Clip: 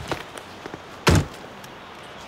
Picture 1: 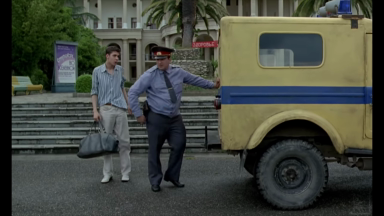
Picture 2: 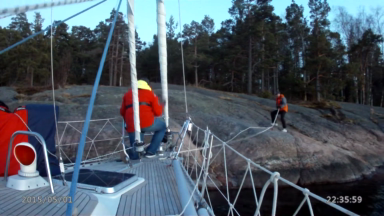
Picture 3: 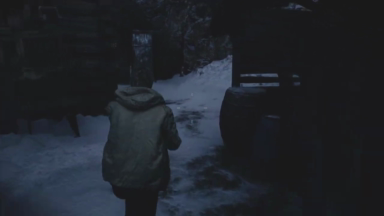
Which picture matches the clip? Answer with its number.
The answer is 1